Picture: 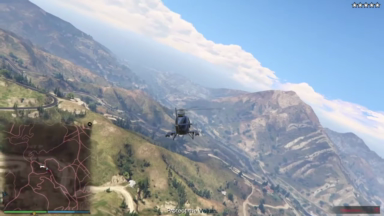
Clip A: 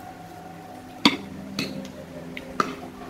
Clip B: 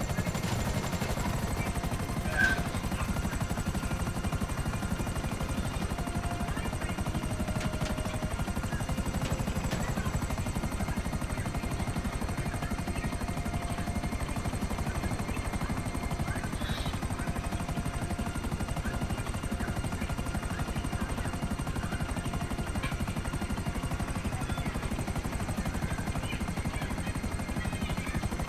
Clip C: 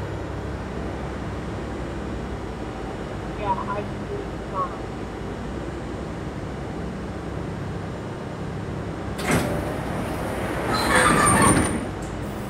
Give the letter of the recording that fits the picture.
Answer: B